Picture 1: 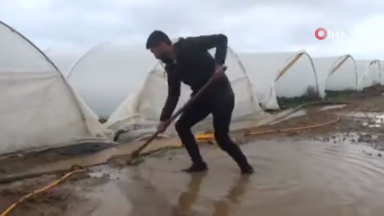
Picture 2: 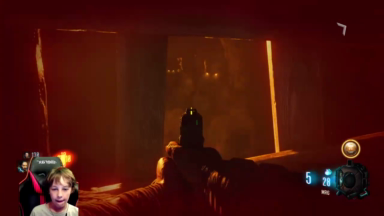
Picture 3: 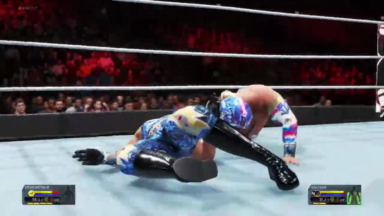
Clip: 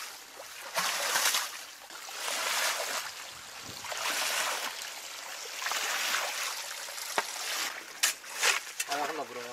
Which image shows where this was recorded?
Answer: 1